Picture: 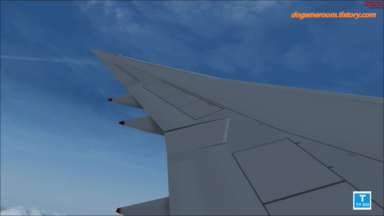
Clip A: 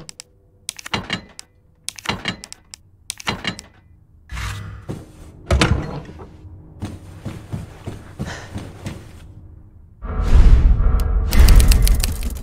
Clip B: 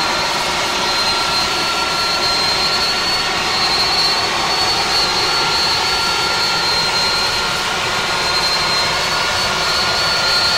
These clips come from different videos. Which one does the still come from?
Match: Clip B